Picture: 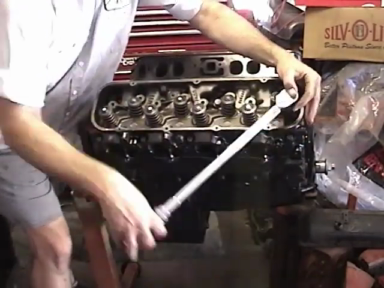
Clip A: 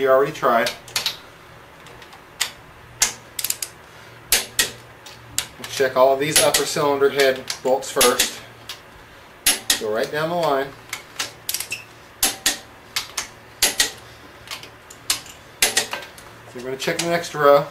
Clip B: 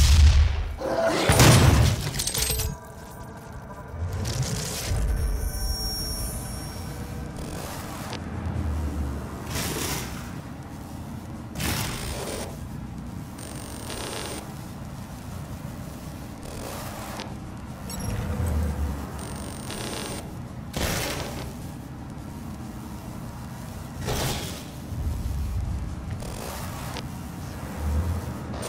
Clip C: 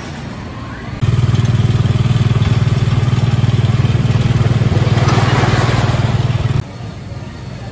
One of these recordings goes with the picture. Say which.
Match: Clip A